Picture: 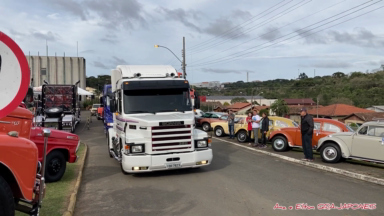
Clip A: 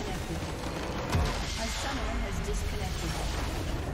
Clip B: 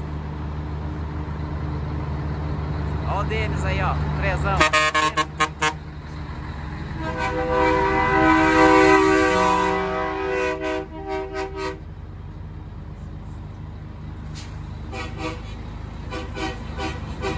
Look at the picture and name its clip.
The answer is B